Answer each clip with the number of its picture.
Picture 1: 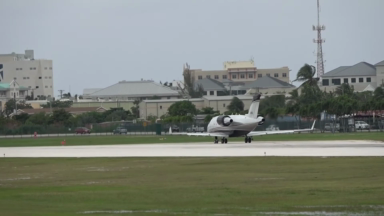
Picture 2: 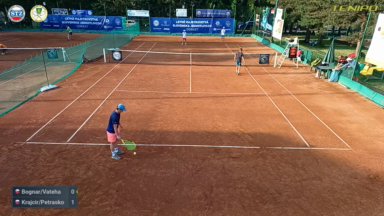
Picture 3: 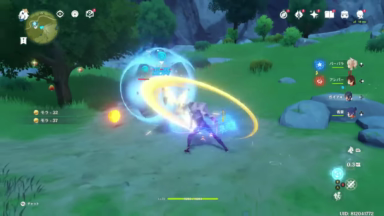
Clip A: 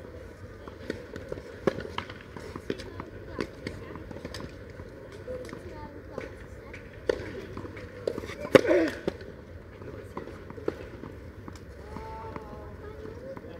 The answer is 2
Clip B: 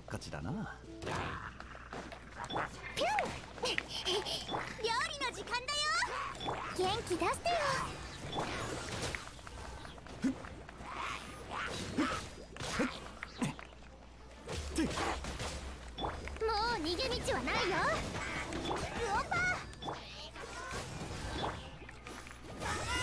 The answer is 3